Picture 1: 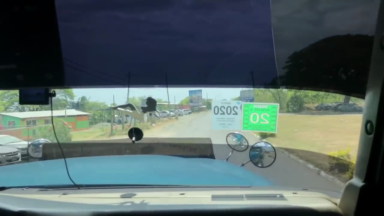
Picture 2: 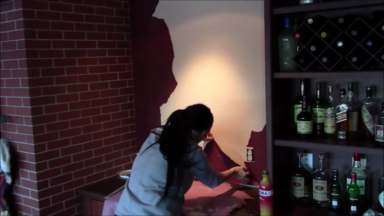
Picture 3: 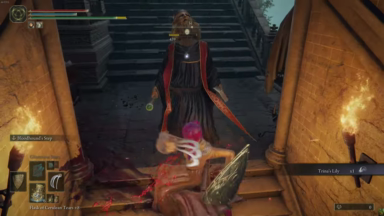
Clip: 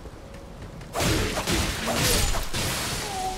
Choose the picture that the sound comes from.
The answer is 3